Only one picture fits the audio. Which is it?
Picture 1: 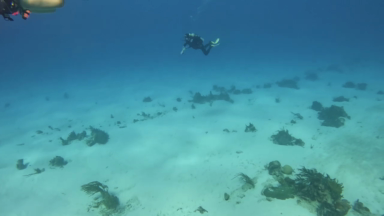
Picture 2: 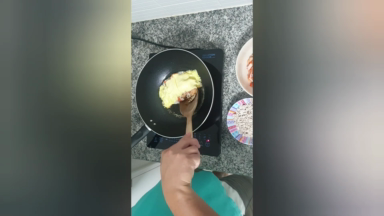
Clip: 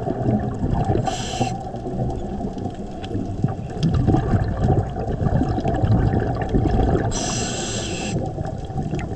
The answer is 1